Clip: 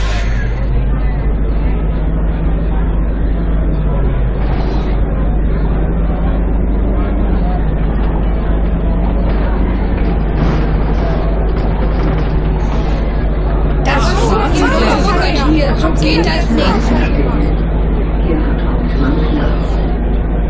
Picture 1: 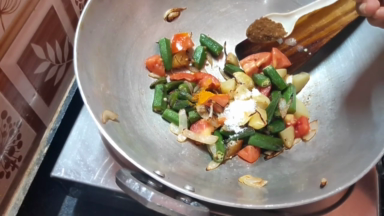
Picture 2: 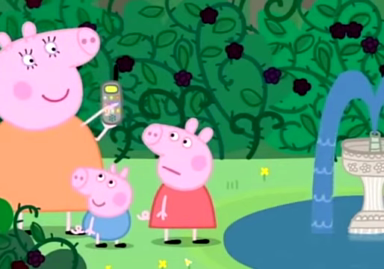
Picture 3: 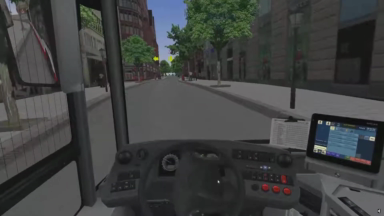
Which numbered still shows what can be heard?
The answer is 3